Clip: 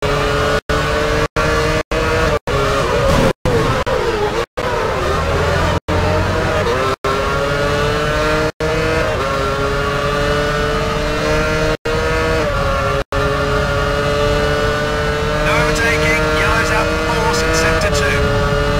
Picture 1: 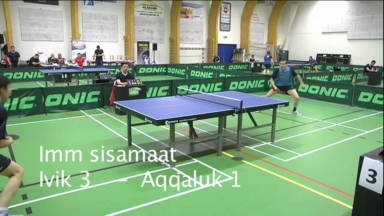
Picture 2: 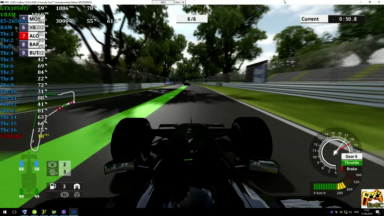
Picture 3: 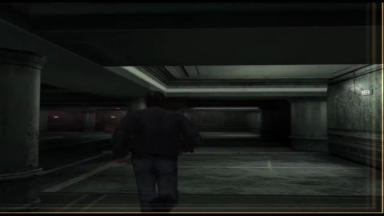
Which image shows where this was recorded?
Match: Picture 2